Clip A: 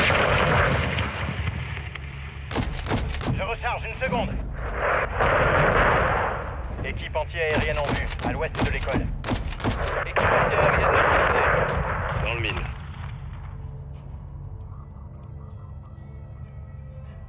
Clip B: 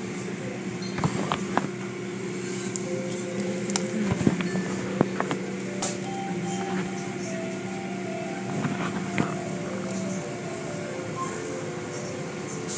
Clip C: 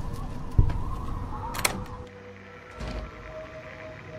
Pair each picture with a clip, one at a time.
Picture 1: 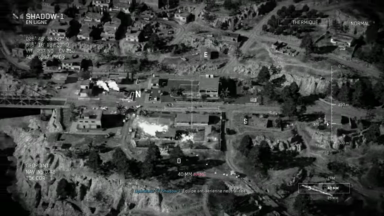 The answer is A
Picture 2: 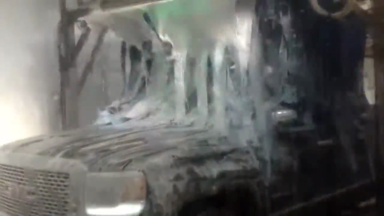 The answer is B